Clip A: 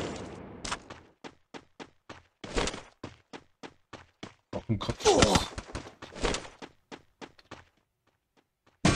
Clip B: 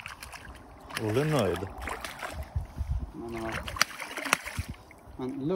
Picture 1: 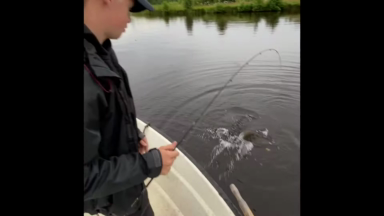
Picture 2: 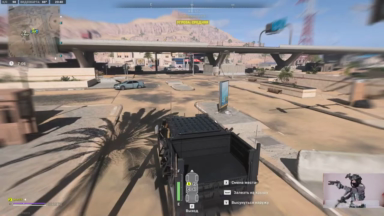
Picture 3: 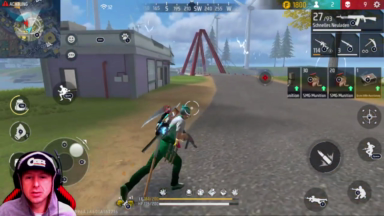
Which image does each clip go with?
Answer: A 3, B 1